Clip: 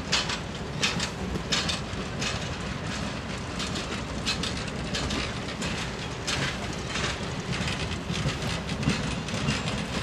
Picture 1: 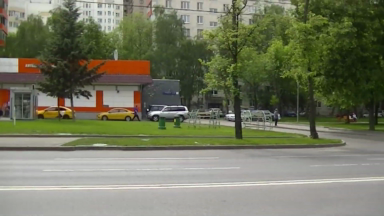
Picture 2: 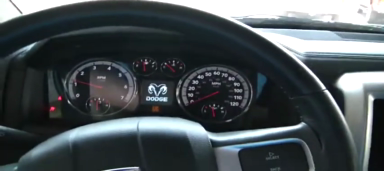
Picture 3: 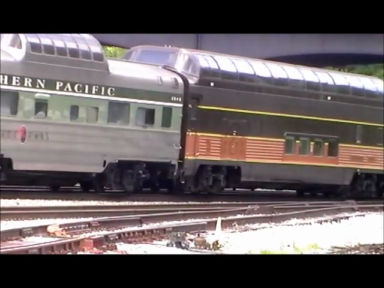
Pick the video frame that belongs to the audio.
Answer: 3